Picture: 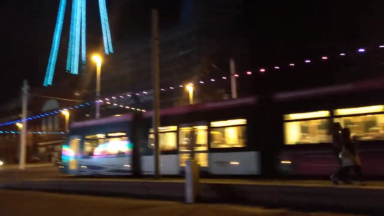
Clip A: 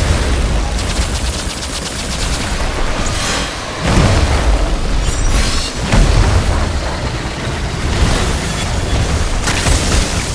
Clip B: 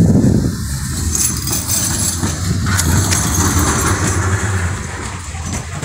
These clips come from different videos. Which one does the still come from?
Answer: B